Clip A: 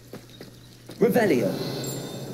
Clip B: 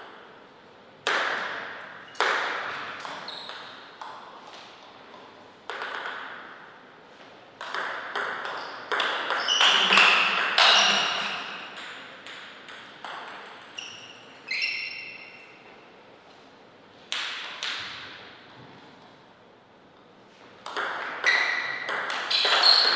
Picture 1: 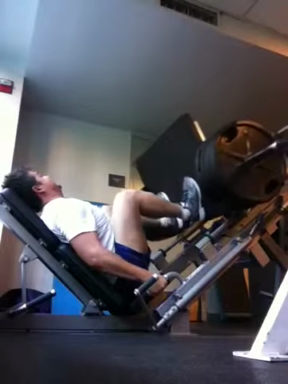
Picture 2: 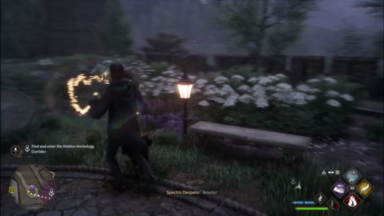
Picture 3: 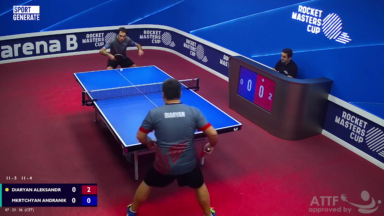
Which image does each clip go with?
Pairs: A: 2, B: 3